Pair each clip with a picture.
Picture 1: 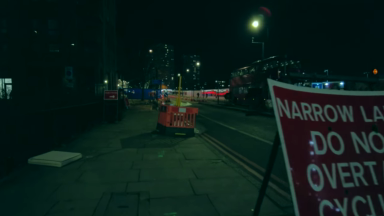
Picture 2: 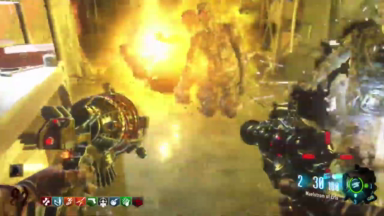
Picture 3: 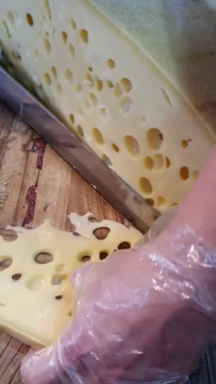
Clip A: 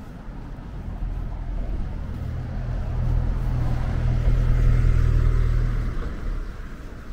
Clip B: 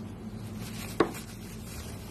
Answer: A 1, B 3